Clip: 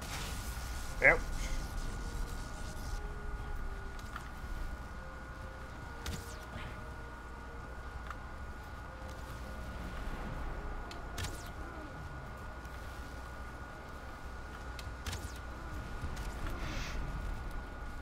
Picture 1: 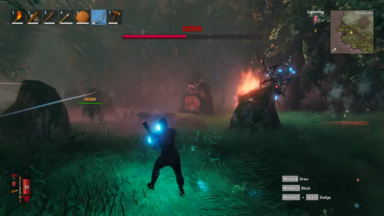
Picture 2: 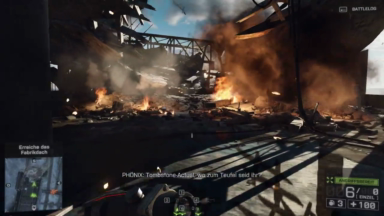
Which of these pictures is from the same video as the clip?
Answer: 1